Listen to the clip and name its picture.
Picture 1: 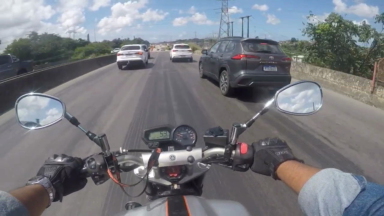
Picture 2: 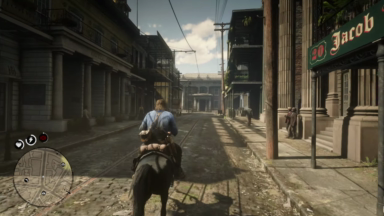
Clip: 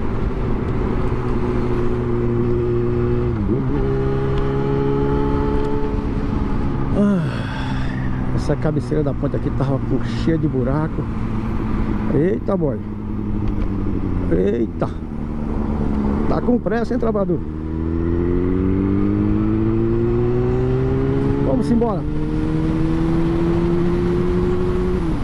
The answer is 1